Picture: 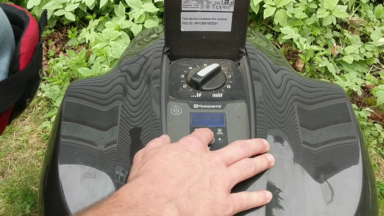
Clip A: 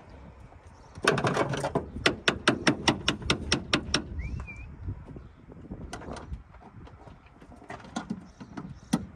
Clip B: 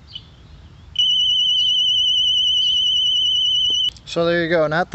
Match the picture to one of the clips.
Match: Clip B